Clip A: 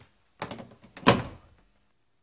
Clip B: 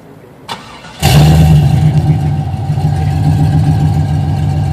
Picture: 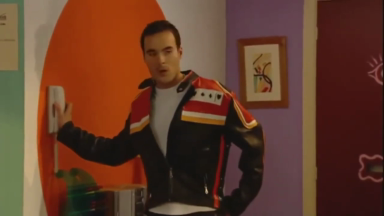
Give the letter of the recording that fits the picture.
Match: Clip A